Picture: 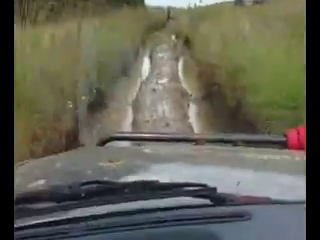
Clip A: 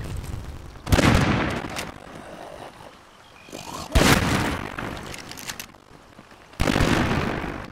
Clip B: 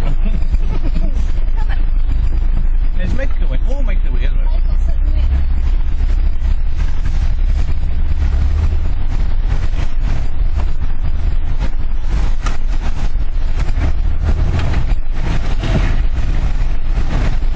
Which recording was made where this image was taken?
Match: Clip B